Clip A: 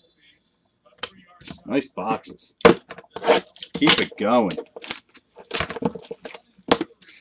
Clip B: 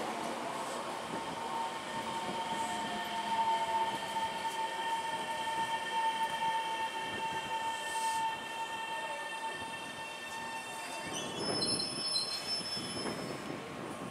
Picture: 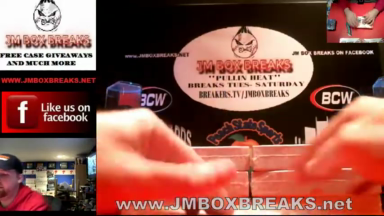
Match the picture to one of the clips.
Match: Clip A